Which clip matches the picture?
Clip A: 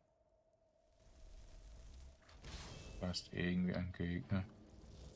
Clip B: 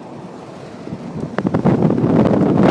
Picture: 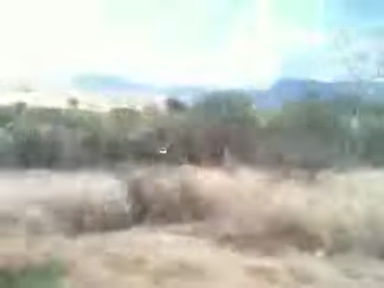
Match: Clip B